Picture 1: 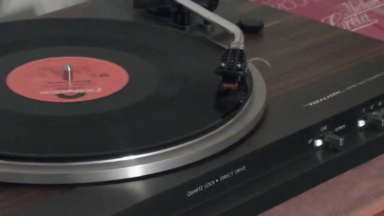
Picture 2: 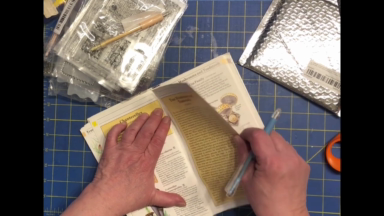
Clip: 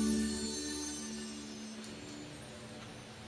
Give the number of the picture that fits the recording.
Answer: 1